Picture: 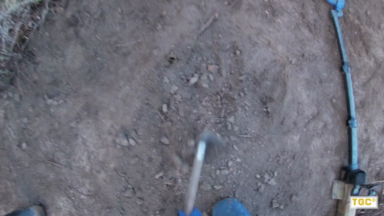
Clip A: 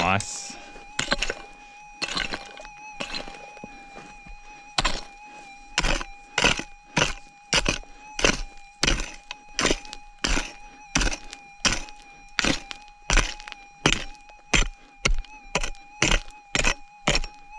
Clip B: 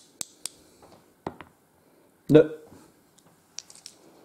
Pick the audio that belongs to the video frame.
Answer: A